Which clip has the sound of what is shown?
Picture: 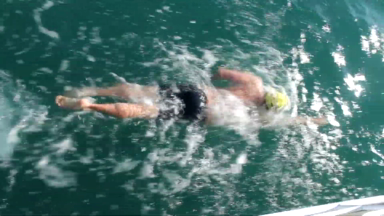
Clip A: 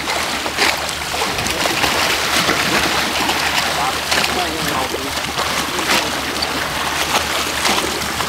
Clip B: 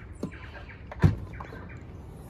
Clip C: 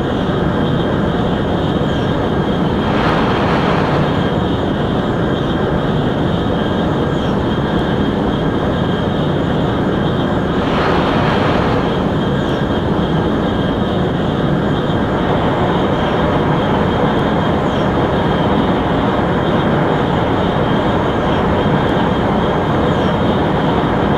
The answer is A